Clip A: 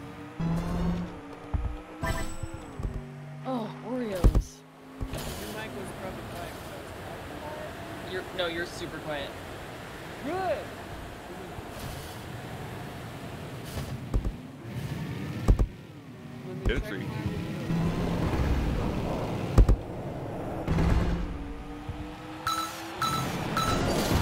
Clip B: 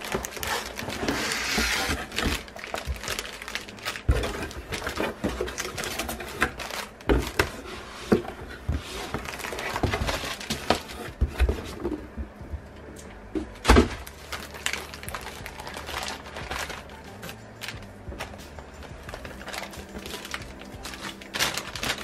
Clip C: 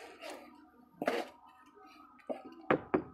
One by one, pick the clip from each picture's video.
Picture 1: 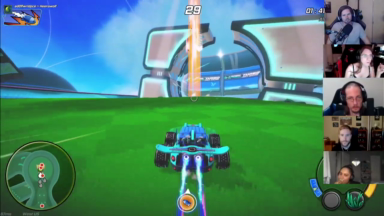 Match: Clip A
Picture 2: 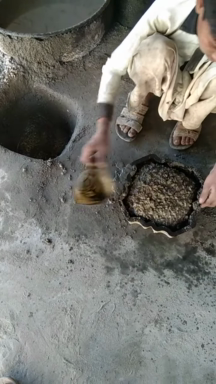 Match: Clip C